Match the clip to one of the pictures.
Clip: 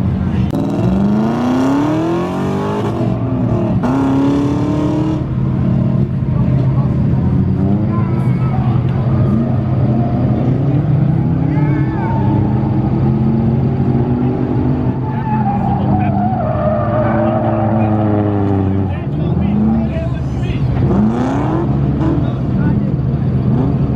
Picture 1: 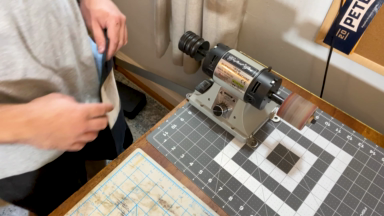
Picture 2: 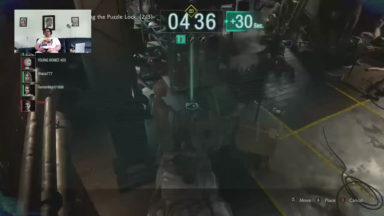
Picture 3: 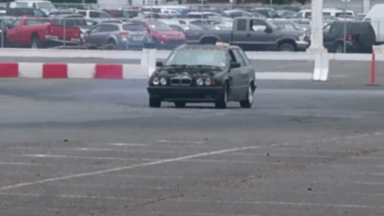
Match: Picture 3